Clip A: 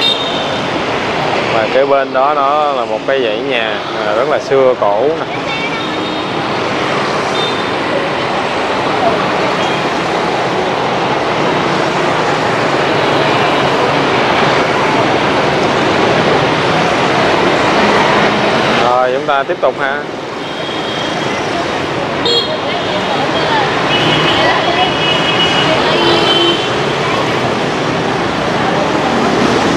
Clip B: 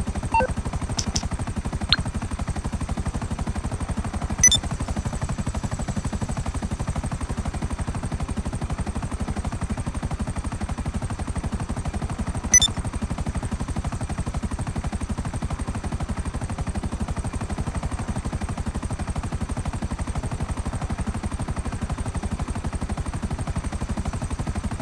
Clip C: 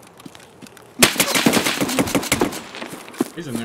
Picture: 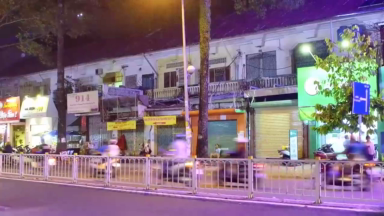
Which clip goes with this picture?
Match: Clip A